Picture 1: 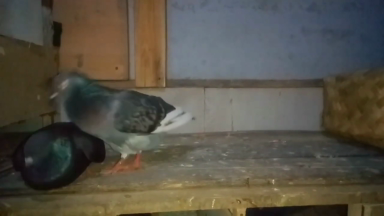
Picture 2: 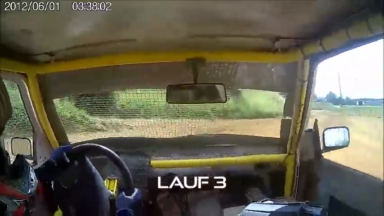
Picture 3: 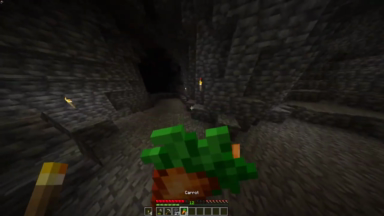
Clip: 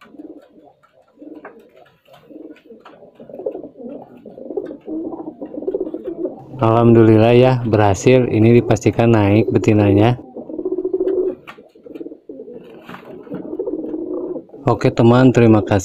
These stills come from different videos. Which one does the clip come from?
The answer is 1